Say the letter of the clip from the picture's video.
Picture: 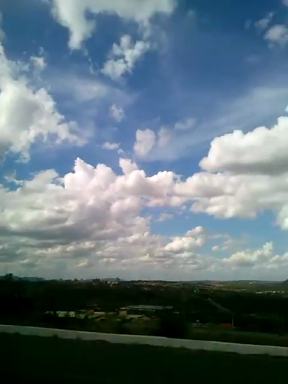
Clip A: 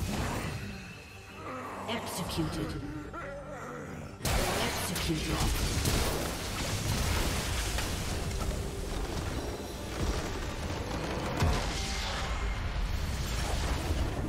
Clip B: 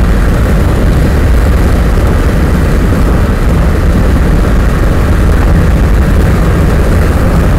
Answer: B